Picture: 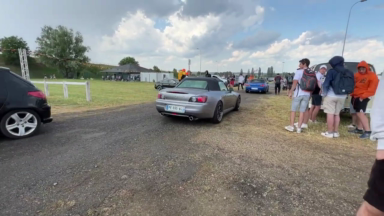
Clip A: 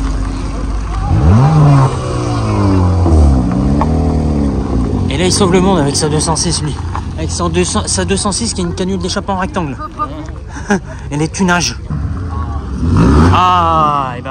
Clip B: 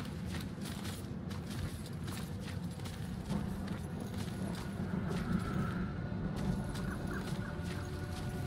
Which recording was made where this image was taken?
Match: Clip A